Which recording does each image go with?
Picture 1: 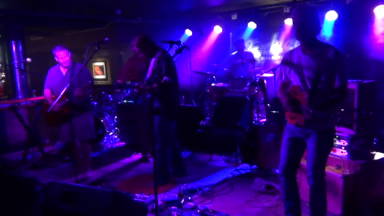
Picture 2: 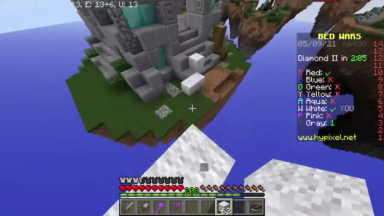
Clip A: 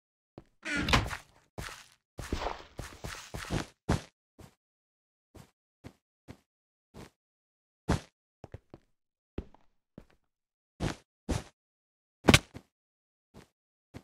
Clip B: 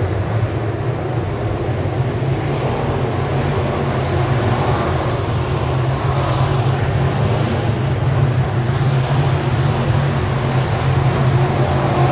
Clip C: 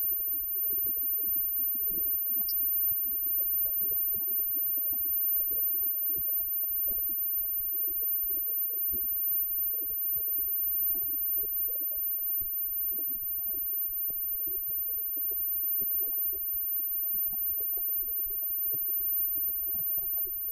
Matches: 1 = C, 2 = A